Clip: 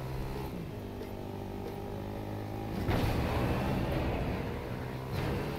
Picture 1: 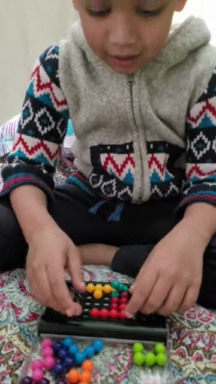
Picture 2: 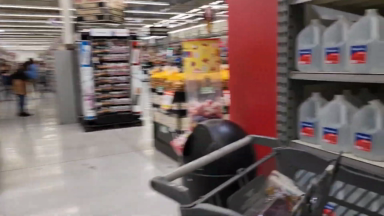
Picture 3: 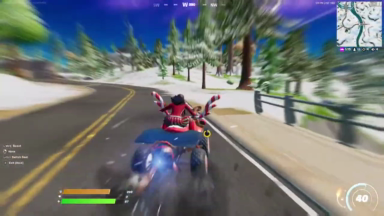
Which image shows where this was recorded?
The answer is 3